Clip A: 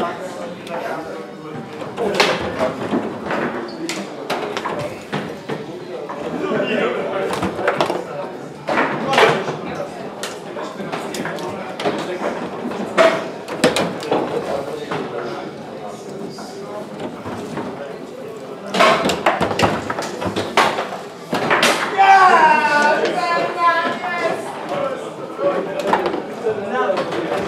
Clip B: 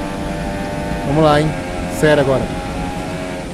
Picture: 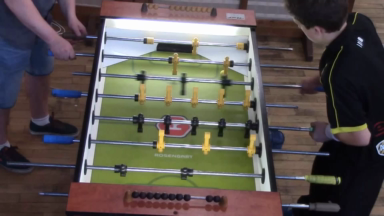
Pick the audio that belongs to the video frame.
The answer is A